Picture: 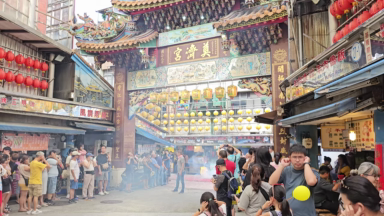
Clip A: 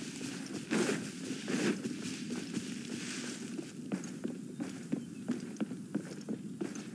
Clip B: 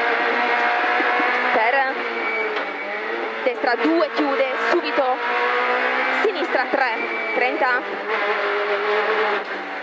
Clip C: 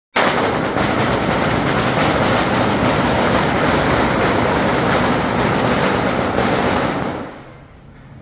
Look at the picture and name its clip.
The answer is C